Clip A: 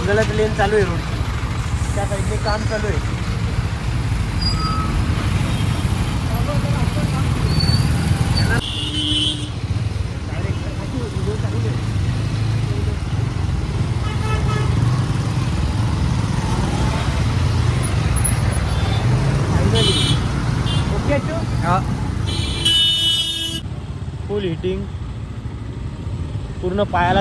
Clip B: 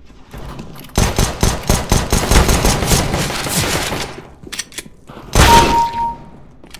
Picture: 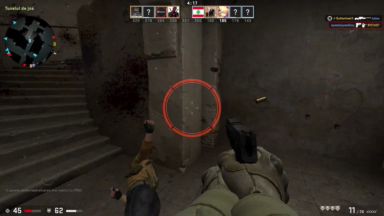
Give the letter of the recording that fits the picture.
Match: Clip B